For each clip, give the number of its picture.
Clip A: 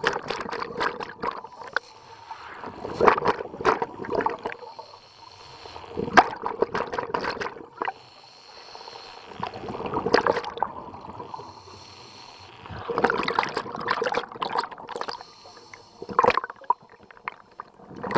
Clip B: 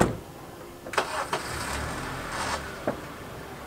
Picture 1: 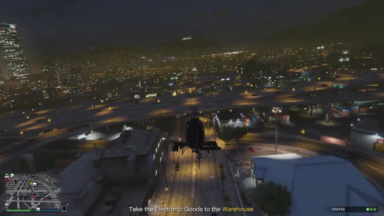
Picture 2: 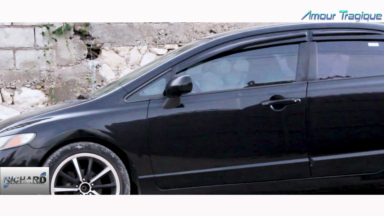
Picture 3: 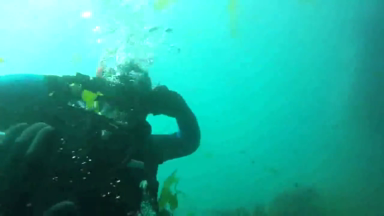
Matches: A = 3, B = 2